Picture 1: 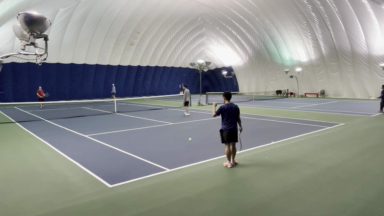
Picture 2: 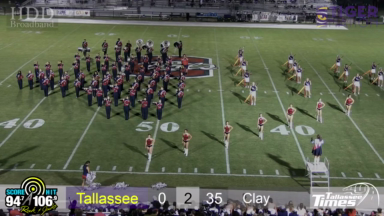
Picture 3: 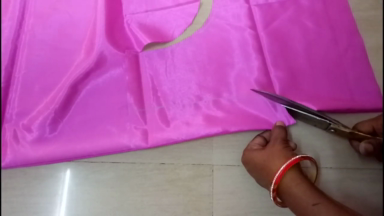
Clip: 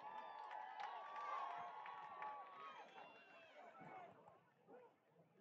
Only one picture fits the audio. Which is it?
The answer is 2